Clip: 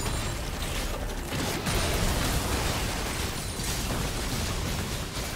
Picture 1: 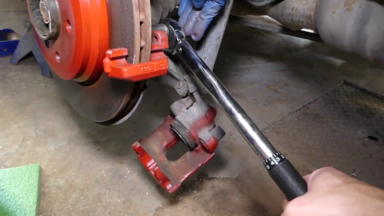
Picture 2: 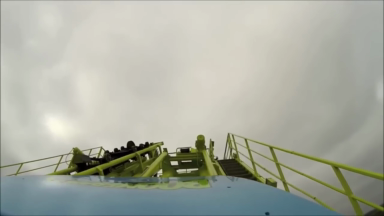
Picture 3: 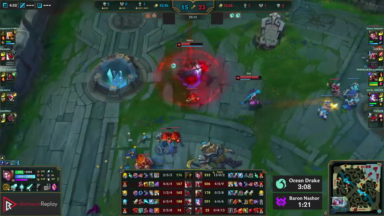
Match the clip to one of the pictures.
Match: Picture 3